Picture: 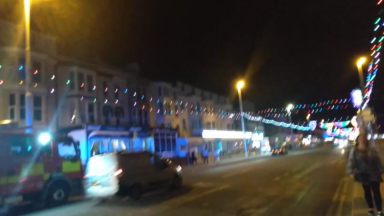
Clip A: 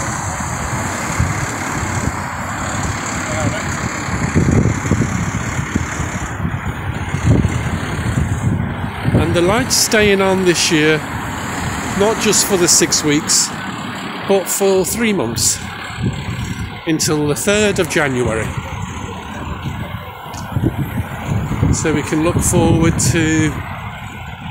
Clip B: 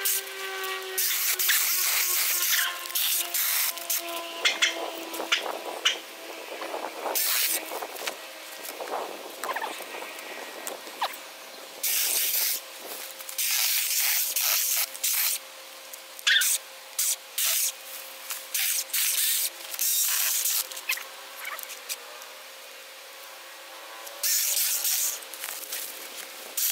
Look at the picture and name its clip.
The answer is A